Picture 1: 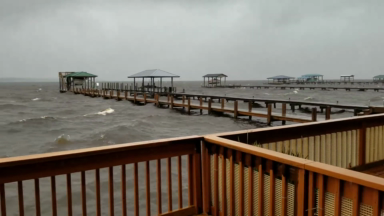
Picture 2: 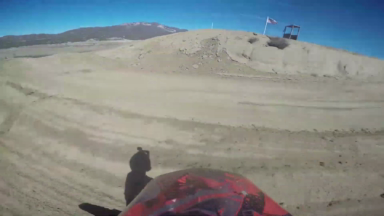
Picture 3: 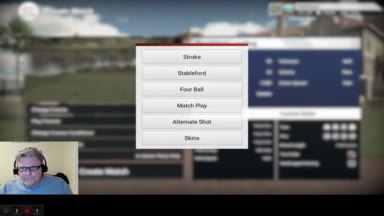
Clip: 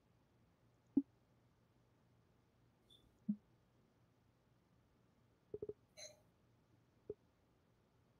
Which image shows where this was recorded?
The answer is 3